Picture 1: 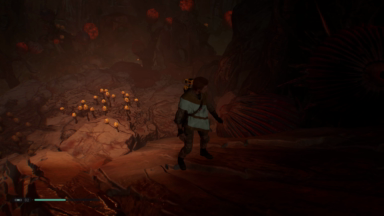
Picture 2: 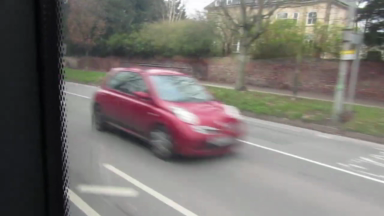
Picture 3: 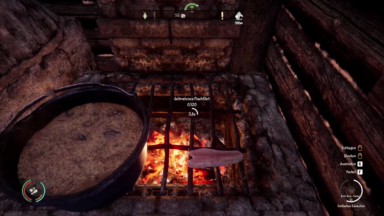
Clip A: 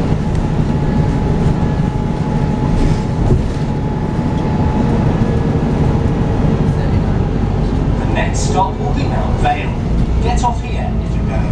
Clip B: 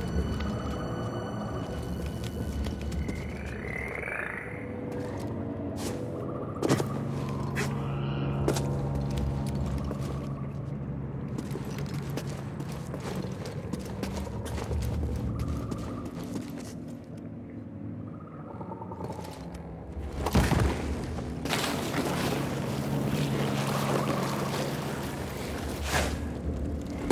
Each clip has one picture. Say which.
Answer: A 2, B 1